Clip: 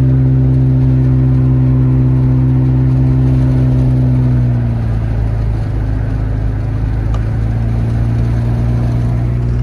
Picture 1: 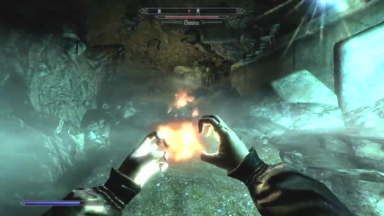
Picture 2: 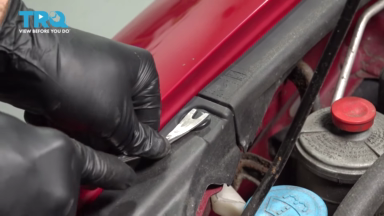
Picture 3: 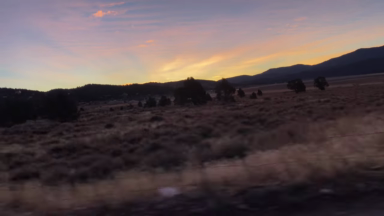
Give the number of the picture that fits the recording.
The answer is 3